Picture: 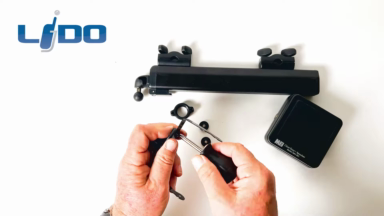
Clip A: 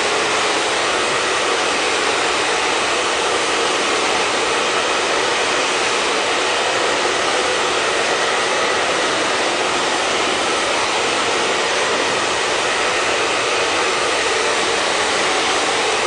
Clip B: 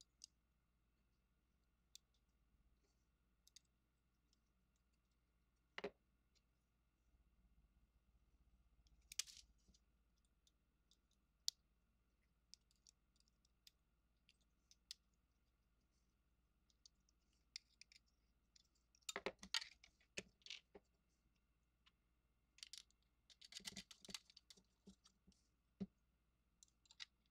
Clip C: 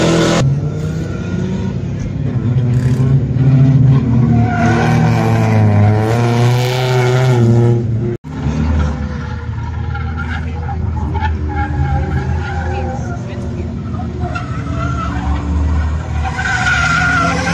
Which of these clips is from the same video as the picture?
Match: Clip B